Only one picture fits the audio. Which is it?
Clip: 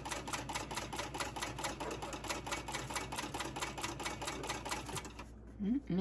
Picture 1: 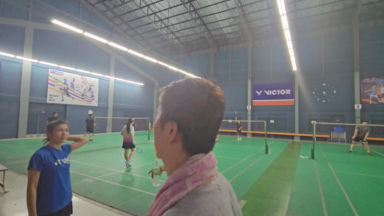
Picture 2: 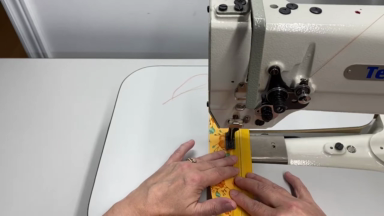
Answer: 2